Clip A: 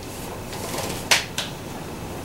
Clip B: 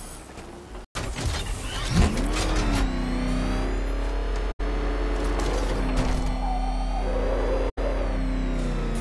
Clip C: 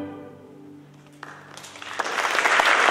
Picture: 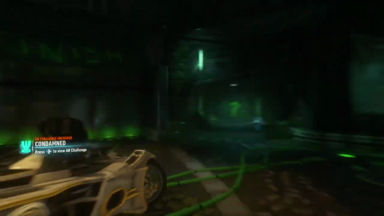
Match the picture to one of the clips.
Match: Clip B